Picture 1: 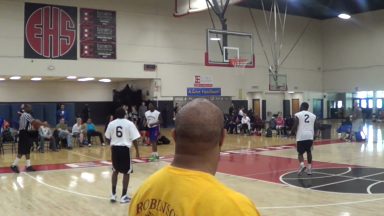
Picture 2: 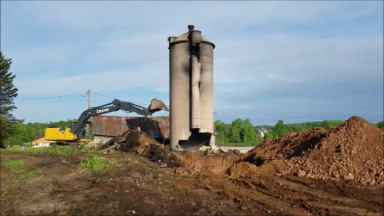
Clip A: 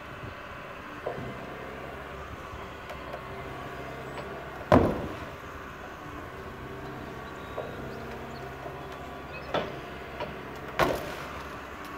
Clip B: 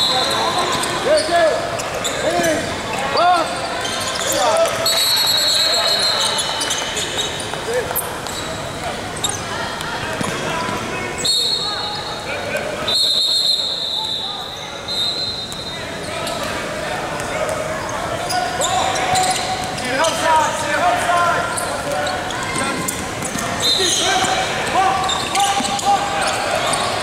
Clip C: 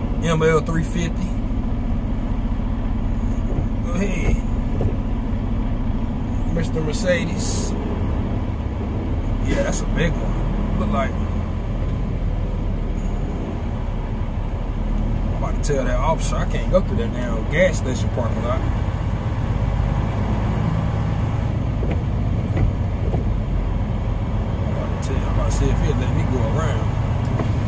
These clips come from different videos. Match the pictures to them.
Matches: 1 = B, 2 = A